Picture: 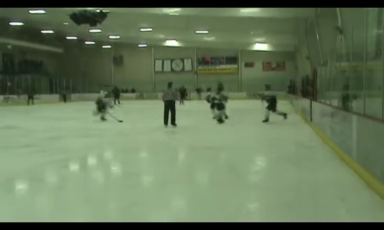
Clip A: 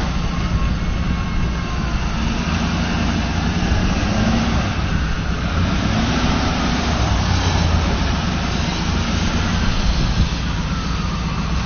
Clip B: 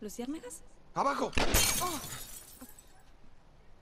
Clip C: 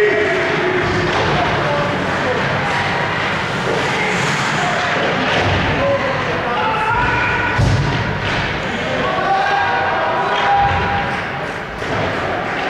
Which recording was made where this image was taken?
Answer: C